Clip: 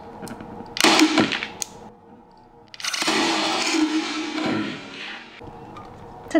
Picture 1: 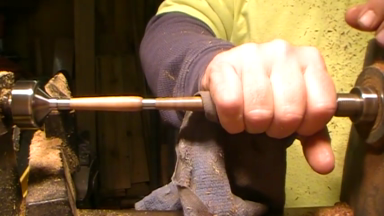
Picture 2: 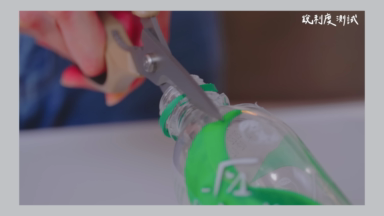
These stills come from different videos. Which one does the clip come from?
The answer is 2